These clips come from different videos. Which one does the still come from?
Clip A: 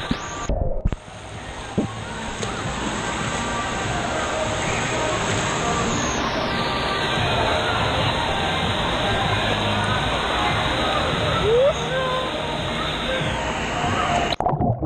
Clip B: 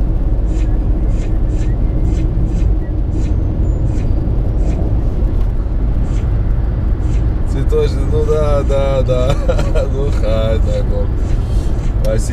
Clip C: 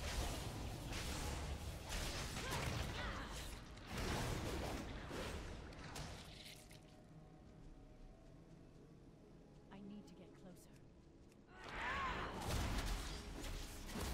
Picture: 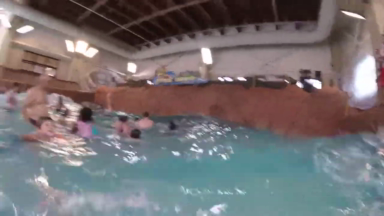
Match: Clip A